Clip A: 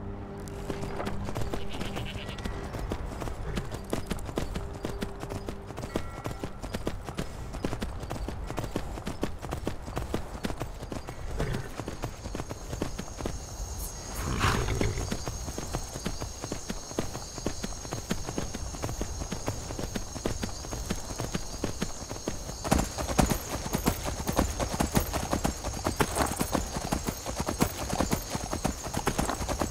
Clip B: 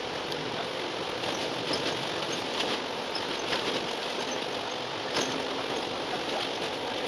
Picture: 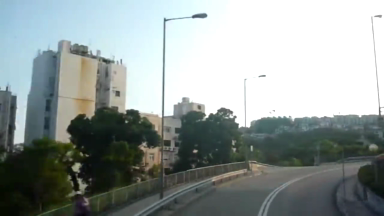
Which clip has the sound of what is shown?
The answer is B